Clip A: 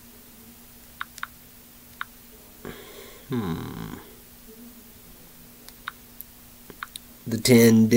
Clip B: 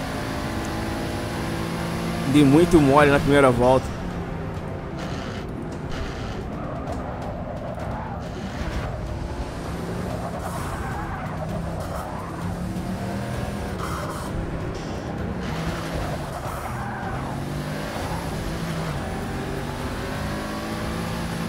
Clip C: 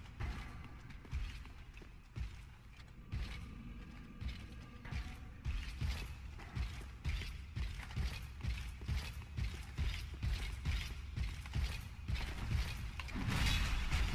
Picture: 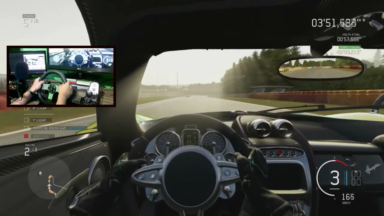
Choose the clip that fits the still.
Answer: B